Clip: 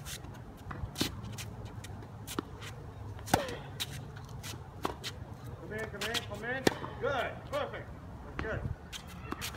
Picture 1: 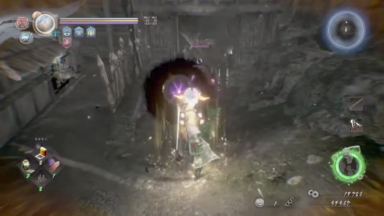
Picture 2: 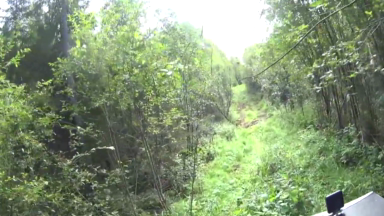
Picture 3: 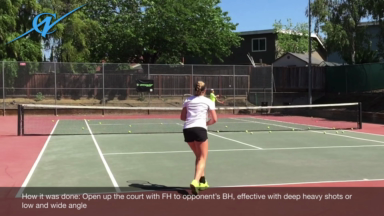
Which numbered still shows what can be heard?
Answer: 3